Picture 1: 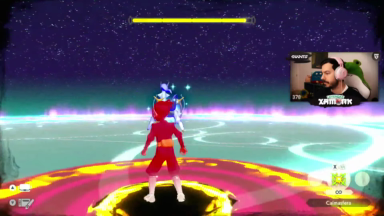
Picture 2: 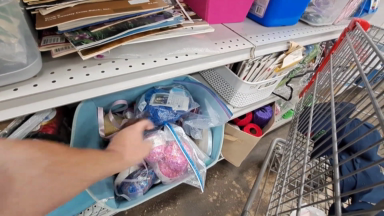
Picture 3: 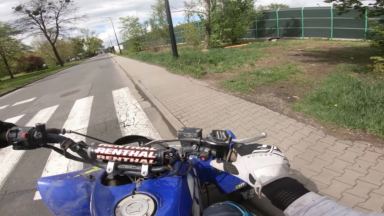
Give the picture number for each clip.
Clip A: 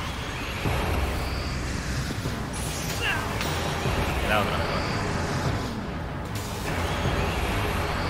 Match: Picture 1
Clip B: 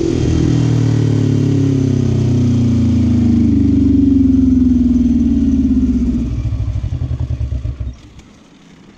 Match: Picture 3